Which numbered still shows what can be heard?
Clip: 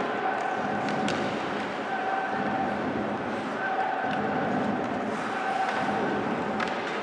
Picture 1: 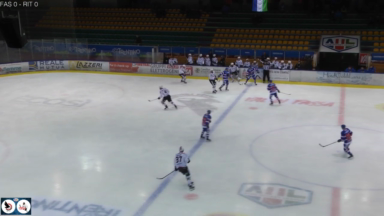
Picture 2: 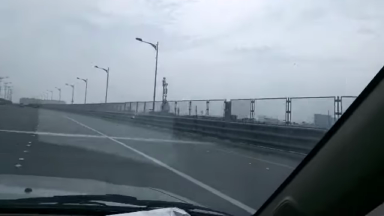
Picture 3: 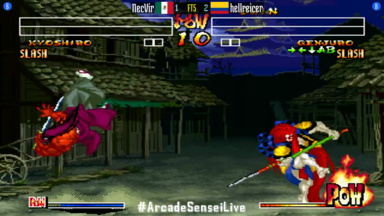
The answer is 1